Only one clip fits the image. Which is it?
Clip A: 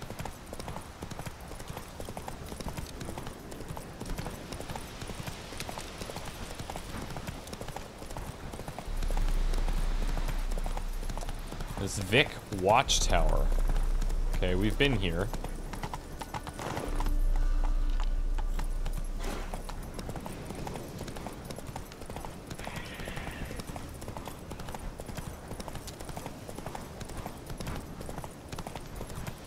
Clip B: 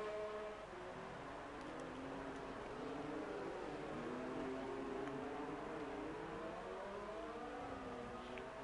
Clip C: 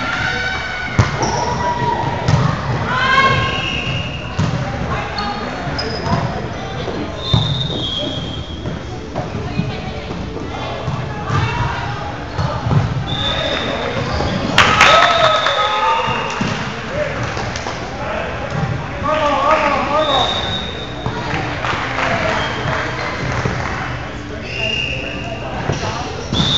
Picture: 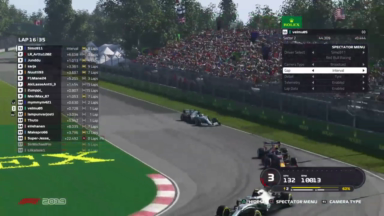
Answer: B